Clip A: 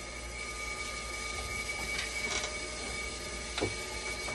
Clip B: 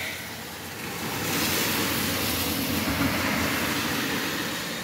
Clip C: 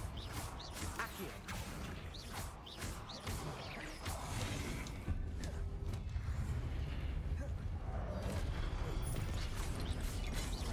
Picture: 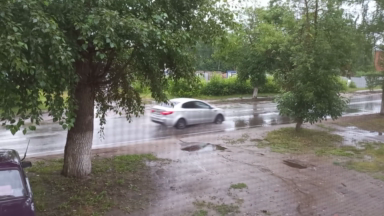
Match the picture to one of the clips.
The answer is B